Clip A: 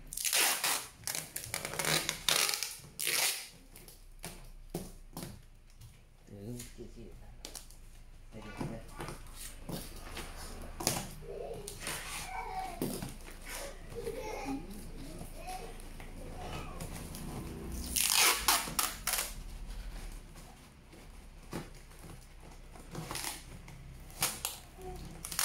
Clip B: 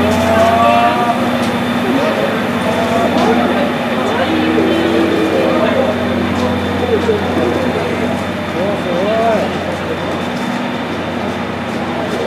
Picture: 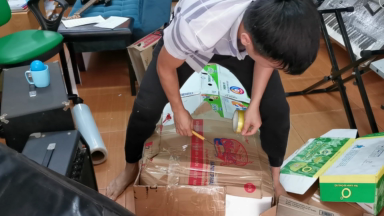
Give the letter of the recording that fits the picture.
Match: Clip A